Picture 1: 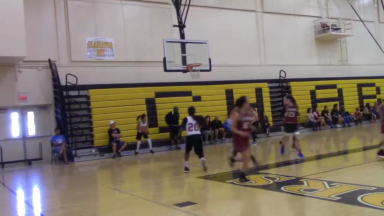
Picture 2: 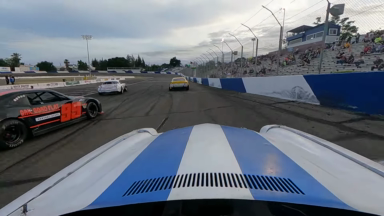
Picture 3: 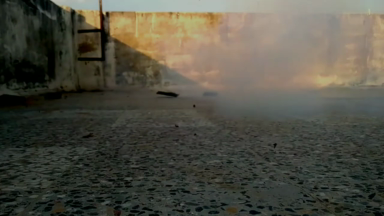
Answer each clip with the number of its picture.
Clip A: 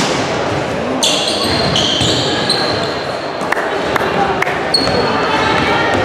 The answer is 1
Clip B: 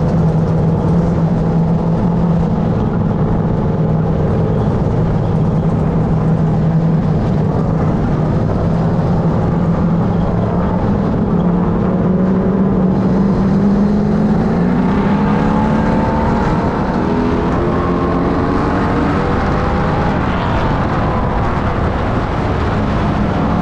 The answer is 2